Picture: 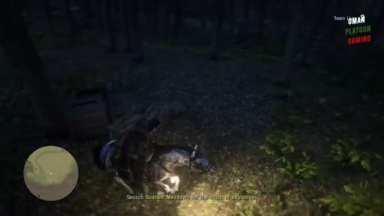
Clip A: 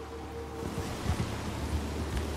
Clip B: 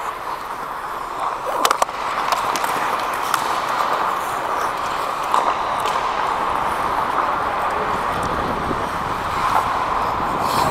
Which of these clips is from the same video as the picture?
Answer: A